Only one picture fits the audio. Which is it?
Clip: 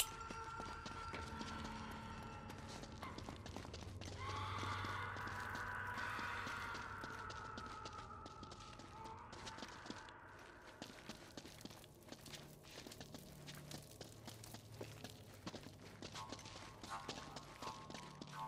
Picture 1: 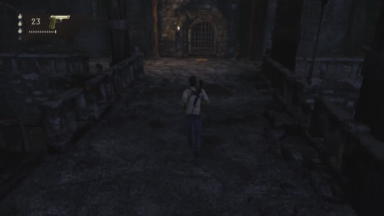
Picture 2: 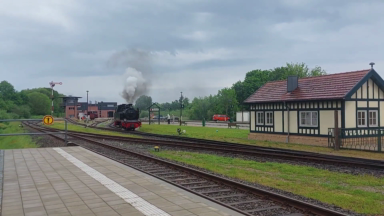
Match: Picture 1